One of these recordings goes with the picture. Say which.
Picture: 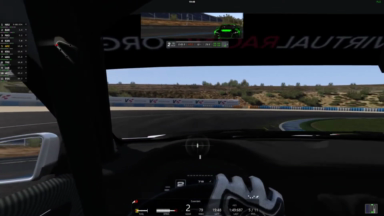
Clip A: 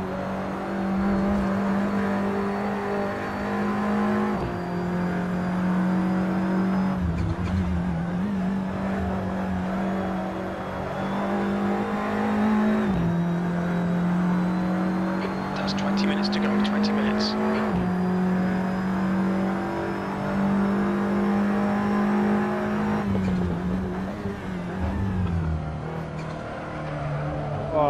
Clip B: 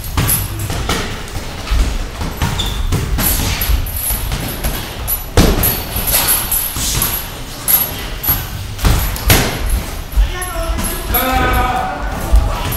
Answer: A